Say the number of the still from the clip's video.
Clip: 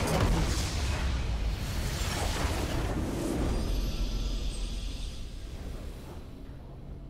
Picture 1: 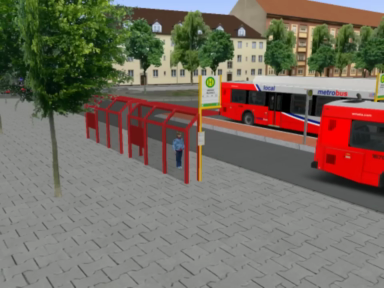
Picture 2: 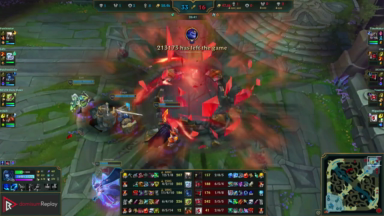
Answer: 2